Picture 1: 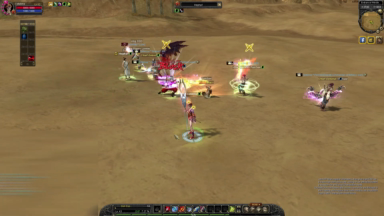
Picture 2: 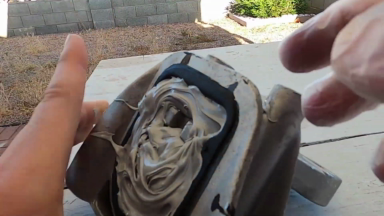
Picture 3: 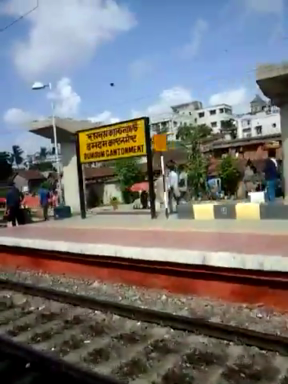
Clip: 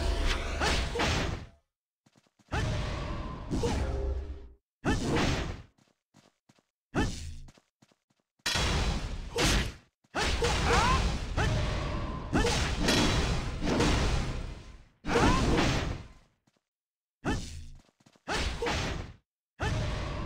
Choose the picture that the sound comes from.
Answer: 1